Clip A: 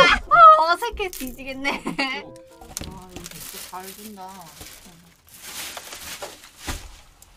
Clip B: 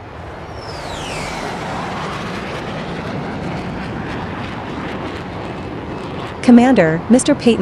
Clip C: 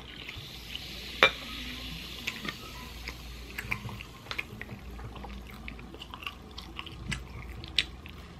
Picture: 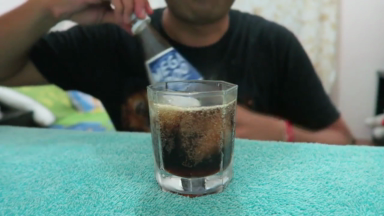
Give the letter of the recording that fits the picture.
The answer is C